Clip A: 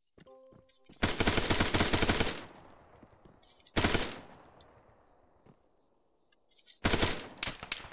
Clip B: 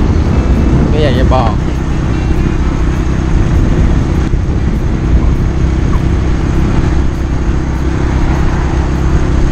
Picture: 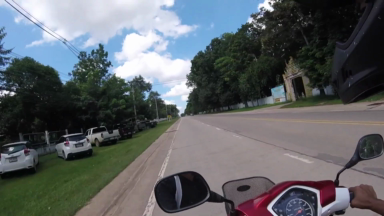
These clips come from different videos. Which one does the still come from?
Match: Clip B